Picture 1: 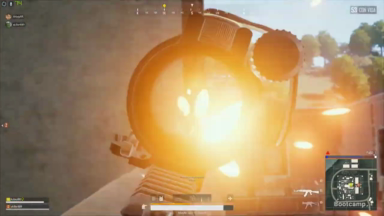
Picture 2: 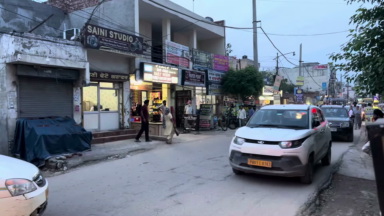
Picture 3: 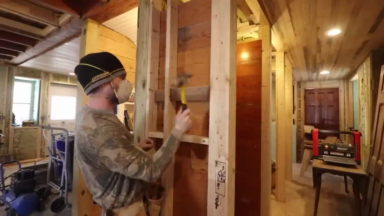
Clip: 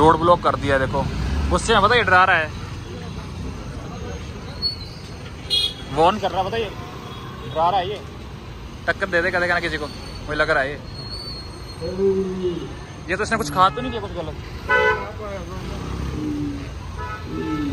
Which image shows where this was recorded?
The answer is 2